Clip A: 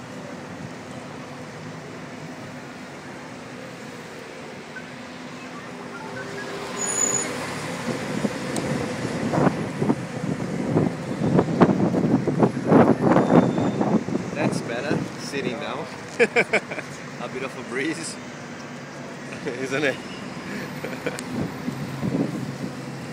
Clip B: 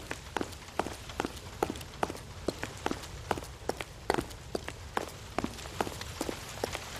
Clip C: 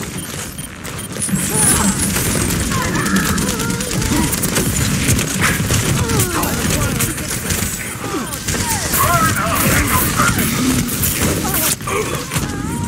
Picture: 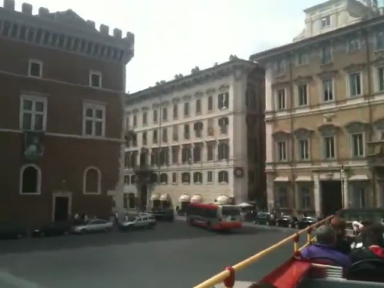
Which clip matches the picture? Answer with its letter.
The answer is A